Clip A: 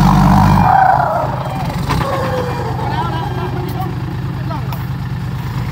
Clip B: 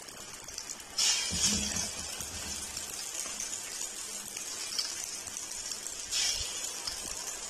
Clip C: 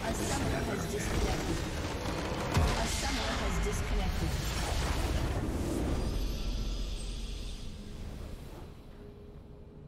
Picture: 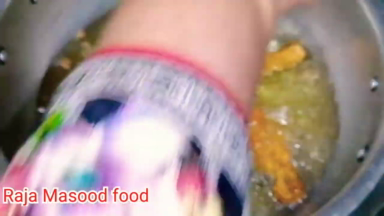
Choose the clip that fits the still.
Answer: B